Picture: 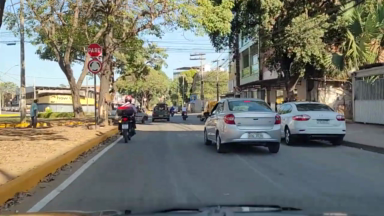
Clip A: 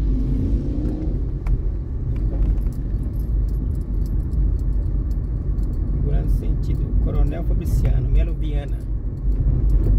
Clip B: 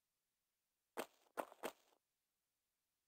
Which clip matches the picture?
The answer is A